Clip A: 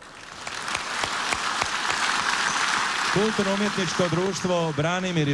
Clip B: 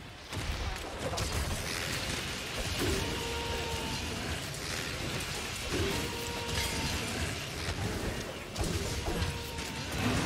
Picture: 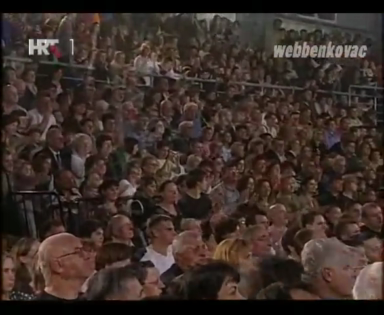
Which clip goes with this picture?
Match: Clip A